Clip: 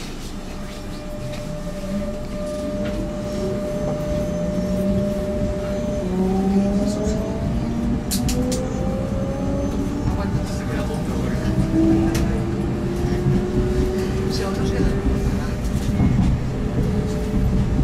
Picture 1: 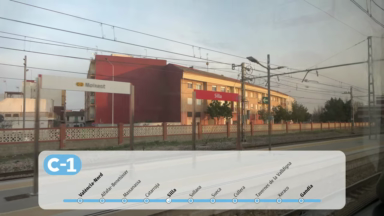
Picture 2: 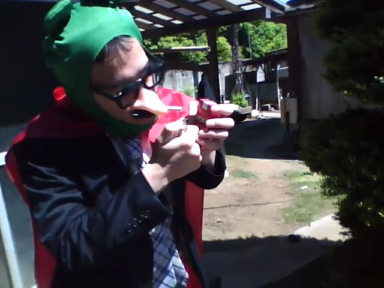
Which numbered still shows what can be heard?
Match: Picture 1